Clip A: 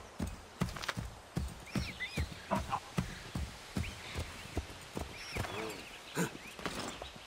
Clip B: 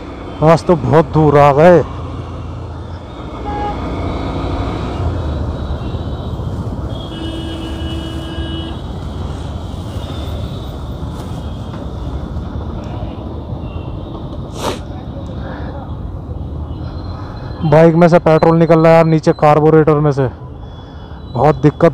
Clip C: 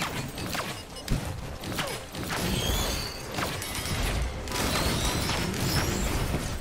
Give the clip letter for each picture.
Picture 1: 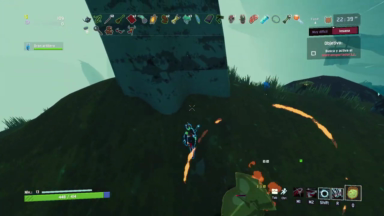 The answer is C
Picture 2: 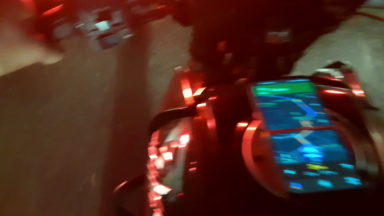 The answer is B